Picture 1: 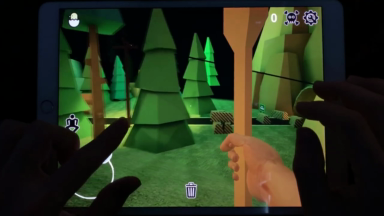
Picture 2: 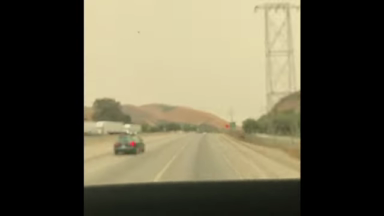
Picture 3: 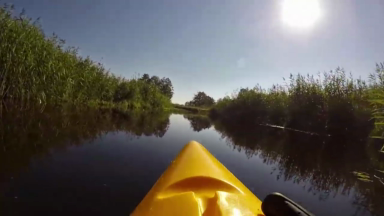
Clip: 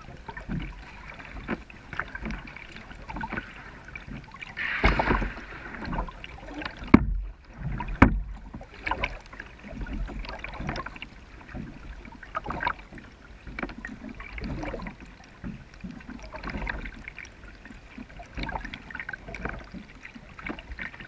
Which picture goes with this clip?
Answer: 3